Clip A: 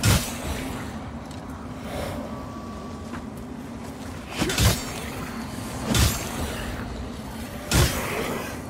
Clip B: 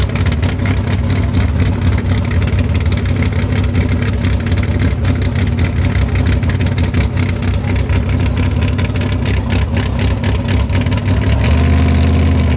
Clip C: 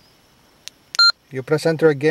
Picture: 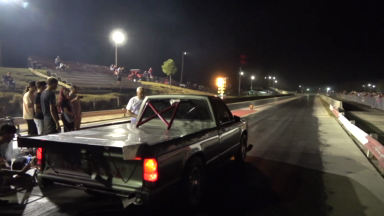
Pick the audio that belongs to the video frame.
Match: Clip B